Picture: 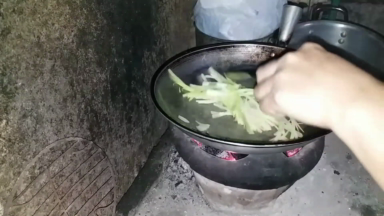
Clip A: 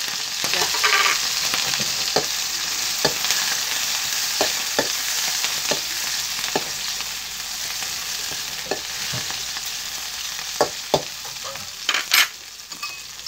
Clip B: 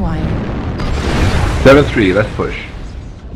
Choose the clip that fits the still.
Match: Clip A